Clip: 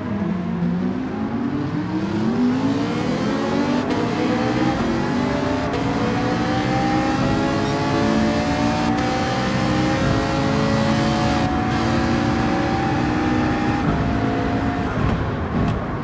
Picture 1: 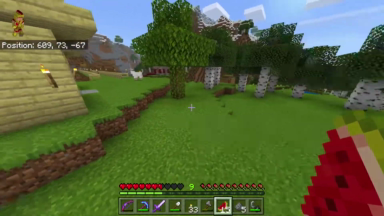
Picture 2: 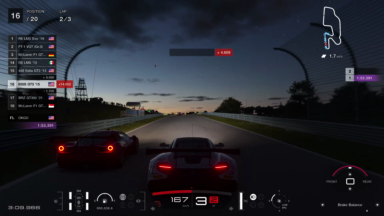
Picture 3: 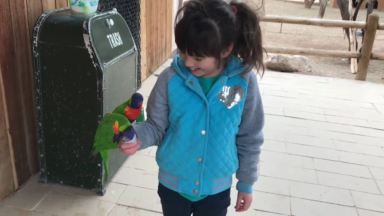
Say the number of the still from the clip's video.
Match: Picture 2